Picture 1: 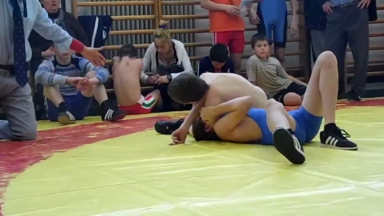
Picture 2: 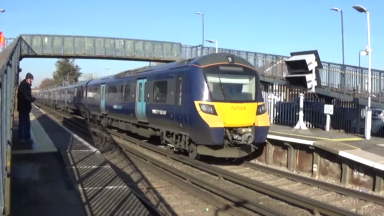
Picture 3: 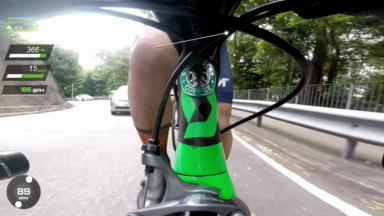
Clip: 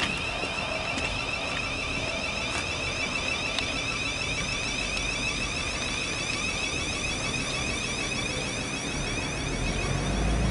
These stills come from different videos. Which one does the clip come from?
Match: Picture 2